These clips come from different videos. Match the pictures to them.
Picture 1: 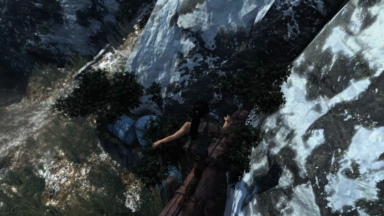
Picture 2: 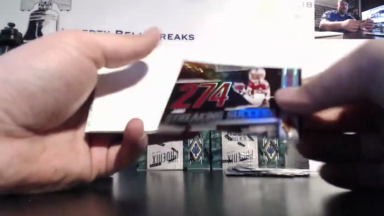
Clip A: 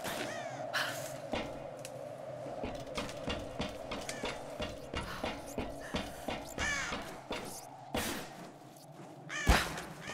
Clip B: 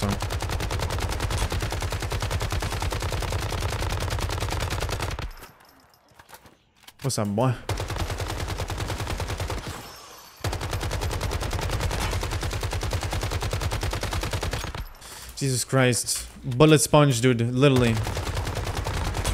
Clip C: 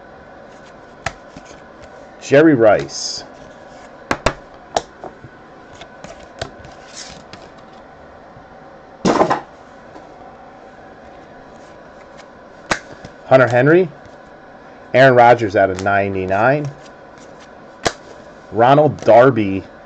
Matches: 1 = A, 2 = C